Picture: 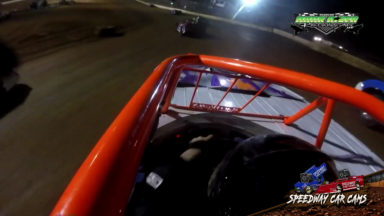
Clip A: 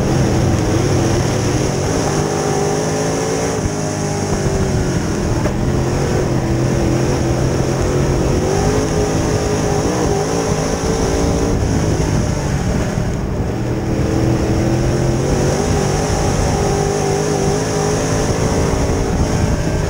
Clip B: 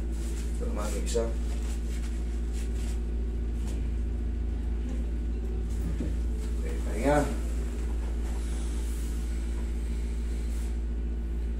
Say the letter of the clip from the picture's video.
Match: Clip A